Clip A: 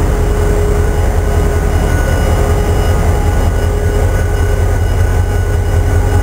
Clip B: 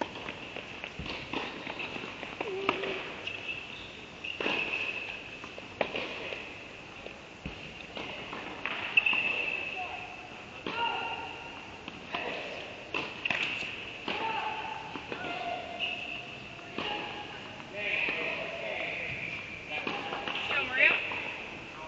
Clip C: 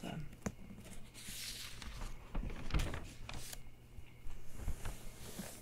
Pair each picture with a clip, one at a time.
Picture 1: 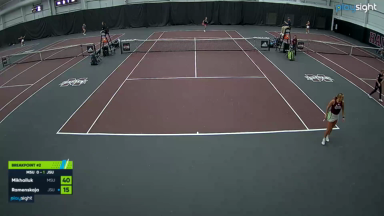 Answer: B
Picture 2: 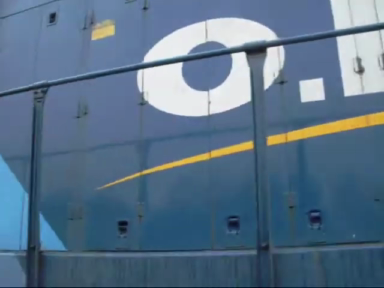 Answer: A